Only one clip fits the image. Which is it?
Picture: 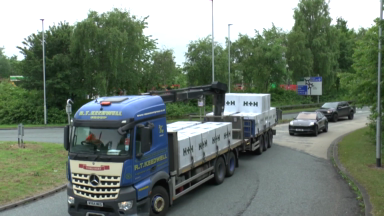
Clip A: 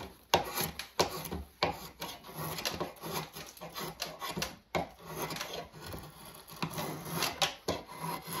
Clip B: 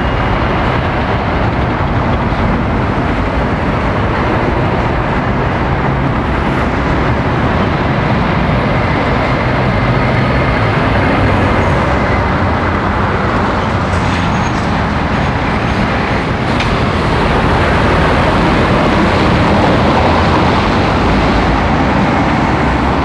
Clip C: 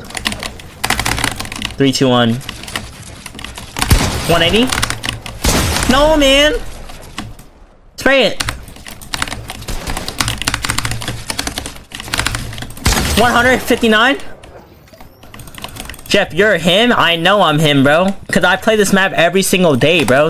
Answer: B